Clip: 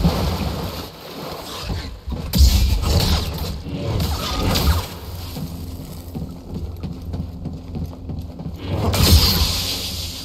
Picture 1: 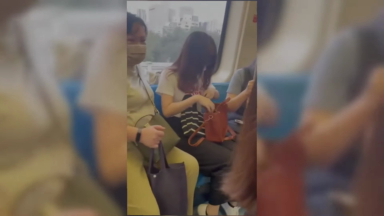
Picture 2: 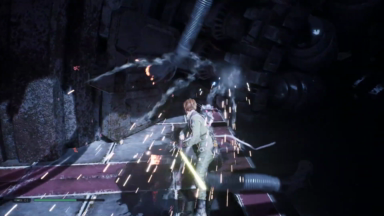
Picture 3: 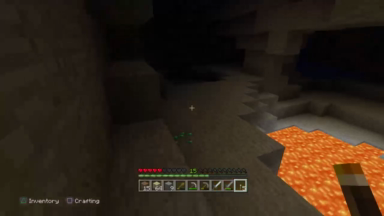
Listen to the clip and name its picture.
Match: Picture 2